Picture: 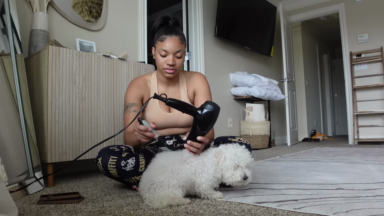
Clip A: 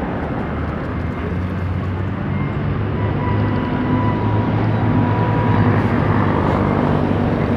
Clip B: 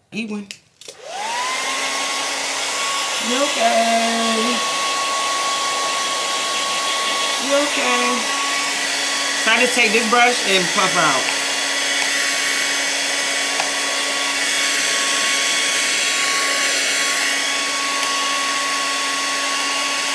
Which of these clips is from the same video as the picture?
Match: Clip B